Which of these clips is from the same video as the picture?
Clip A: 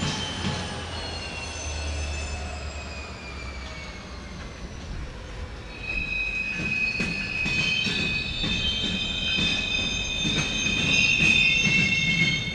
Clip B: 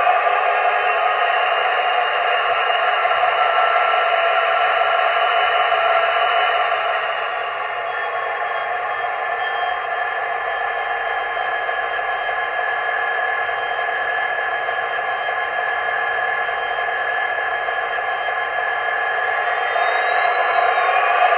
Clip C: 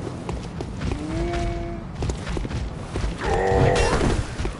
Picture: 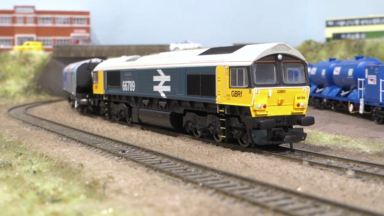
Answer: B